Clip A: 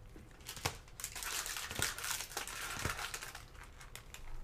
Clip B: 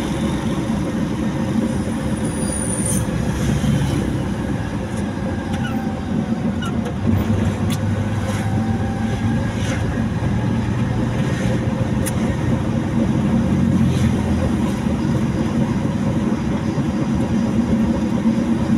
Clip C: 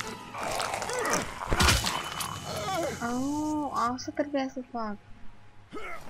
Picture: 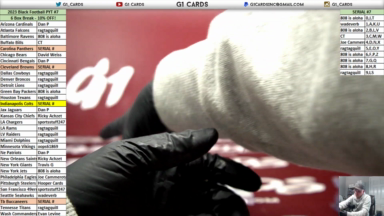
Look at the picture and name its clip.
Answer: A